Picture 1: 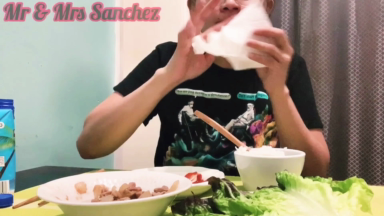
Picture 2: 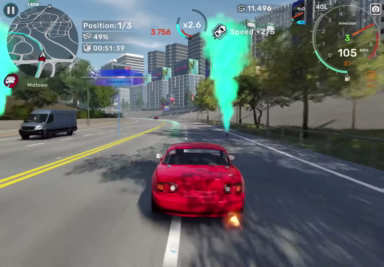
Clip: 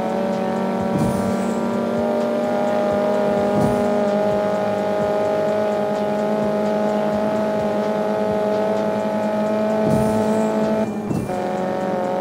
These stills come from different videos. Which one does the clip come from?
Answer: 2